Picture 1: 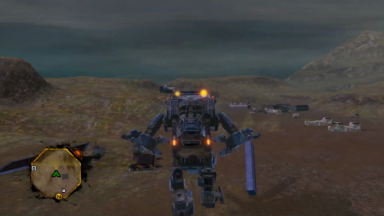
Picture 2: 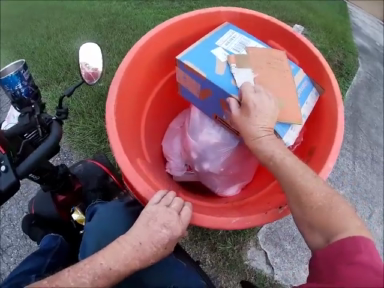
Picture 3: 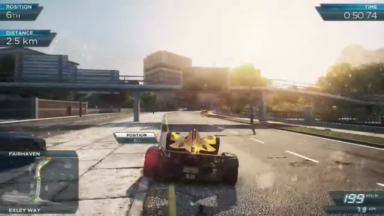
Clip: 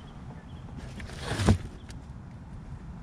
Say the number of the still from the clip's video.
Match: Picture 2